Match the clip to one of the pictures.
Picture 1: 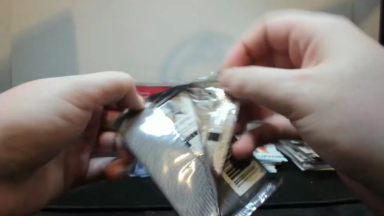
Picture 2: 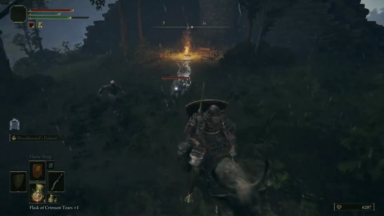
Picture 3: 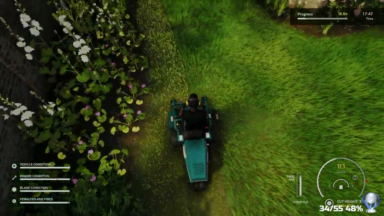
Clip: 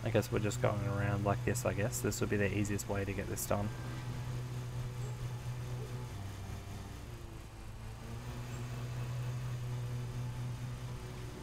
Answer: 3